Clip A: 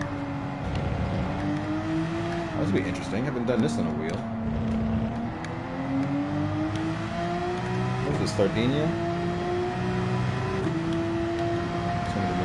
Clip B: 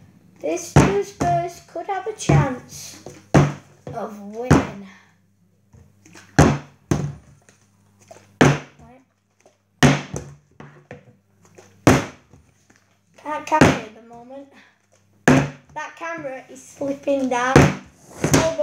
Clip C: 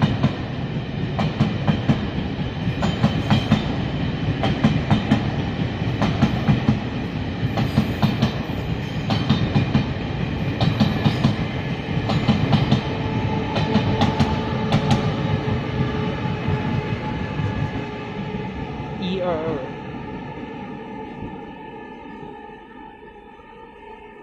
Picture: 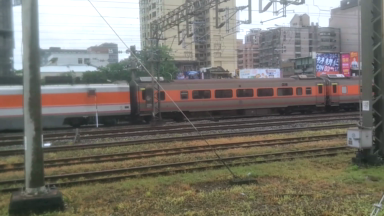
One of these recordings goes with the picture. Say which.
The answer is C